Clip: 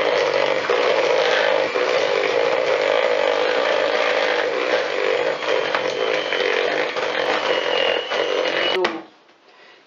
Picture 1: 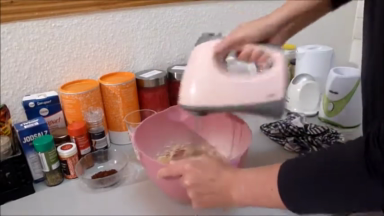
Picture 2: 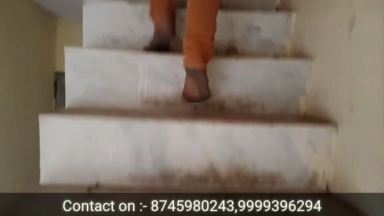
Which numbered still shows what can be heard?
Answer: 1